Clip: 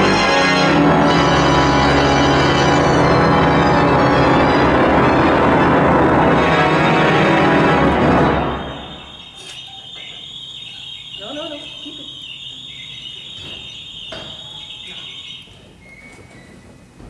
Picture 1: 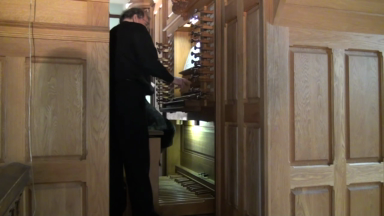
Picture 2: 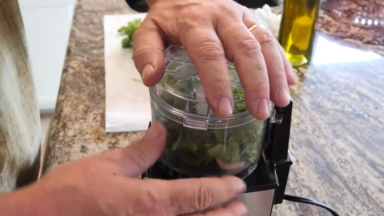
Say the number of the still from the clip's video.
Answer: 1